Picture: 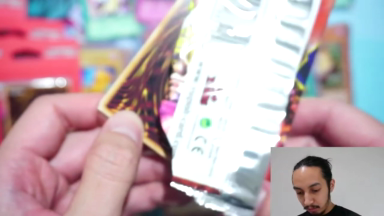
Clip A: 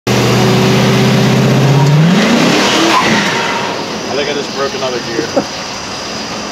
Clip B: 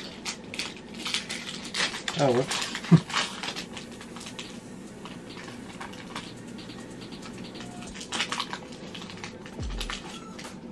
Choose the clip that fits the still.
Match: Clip B